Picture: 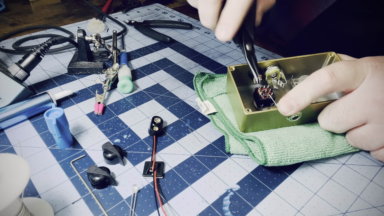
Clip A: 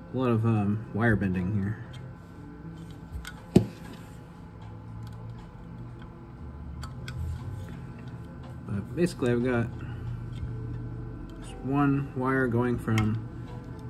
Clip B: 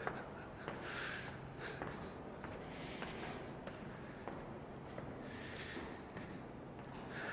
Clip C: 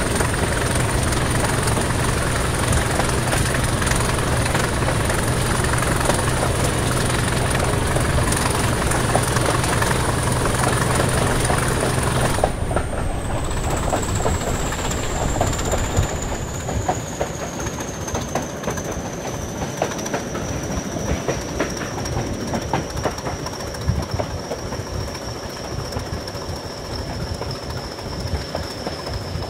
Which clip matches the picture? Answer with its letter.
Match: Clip A